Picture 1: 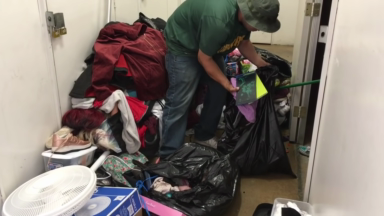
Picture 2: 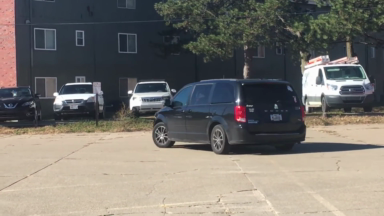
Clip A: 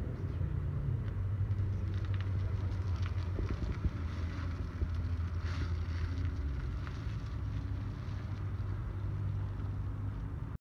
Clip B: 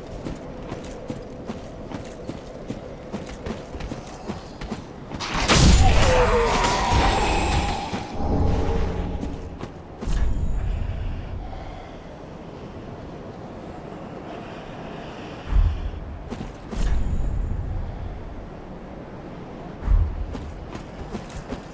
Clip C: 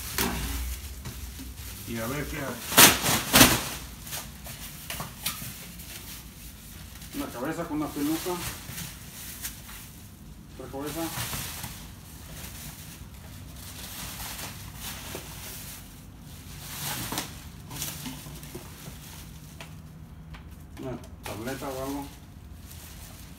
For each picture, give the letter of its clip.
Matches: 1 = C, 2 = A